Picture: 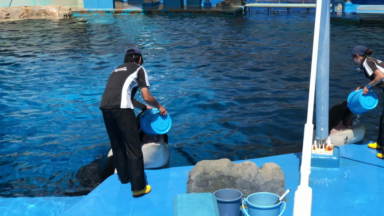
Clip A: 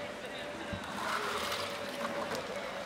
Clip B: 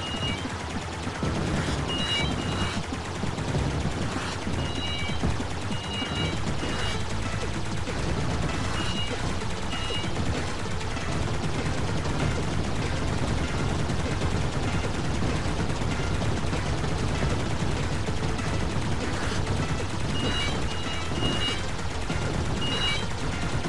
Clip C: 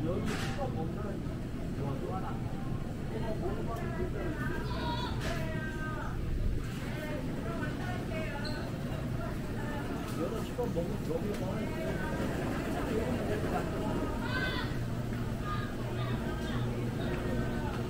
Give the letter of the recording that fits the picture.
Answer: A